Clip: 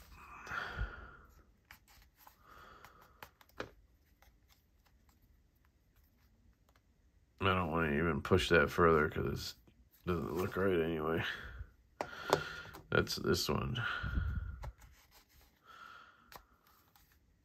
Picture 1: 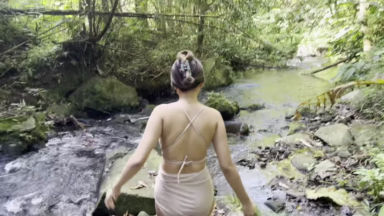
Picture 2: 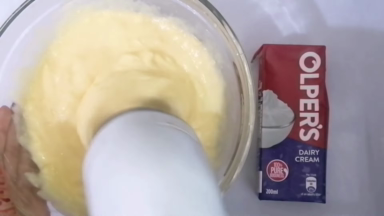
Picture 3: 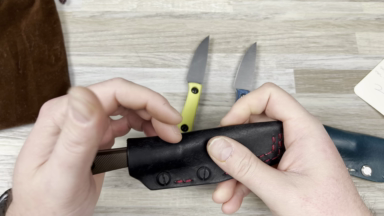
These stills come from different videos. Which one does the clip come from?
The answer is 3